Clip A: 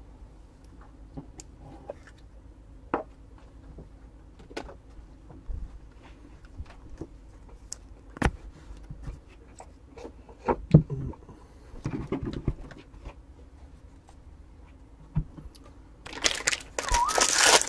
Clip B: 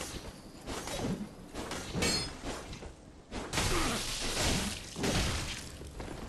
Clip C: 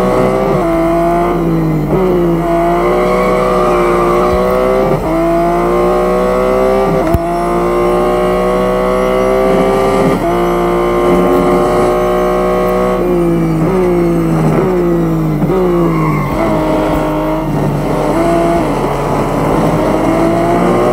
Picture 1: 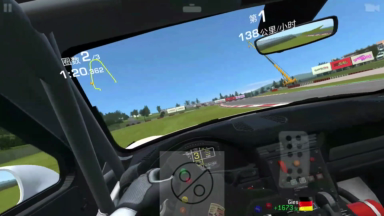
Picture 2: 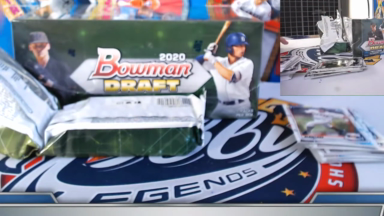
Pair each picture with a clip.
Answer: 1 C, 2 A